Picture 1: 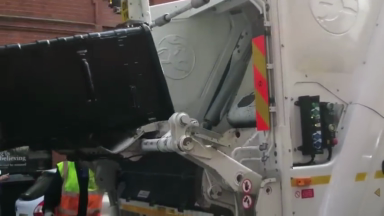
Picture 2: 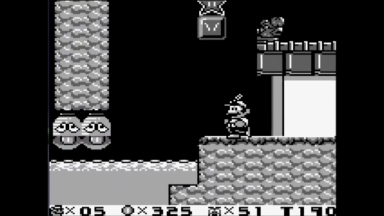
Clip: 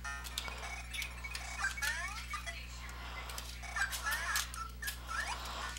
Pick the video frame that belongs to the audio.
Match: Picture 2